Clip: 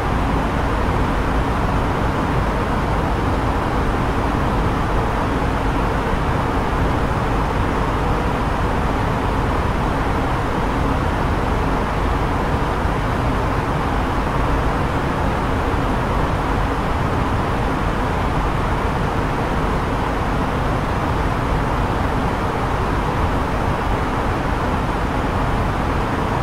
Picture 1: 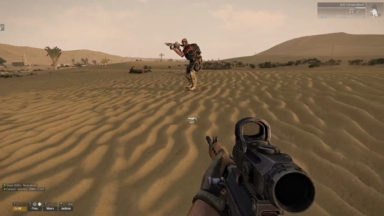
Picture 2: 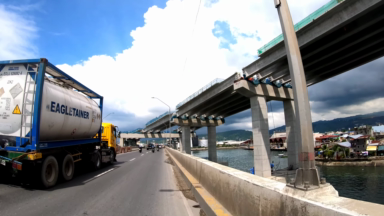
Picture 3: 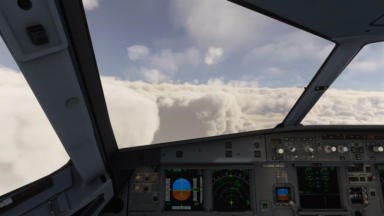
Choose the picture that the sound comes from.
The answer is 3